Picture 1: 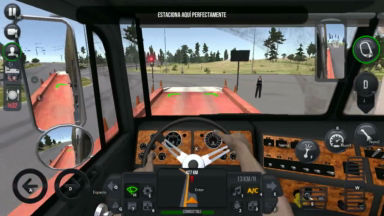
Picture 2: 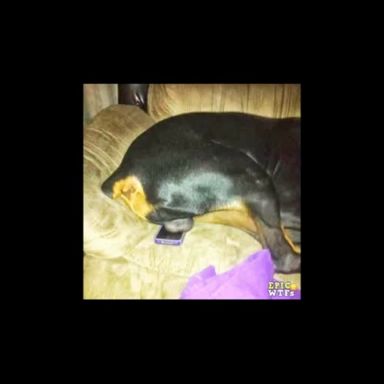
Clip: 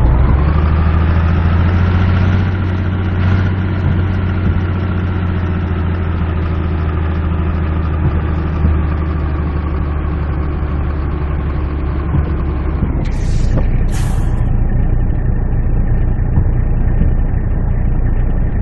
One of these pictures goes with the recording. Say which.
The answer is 1